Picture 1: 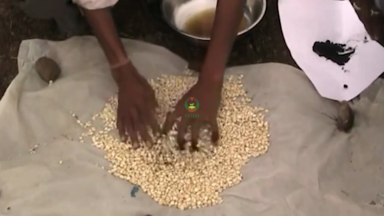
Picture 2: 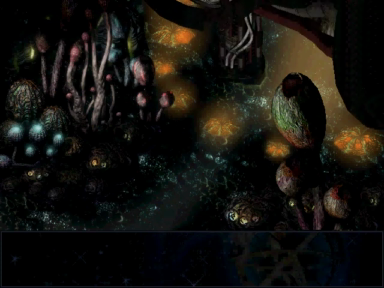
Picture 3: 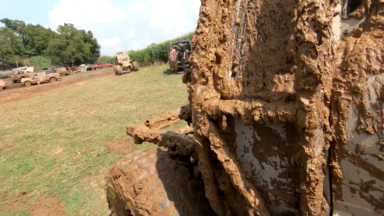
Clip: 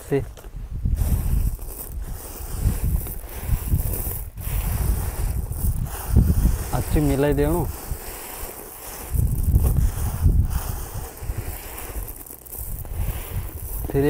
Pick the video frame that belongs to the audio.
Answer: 1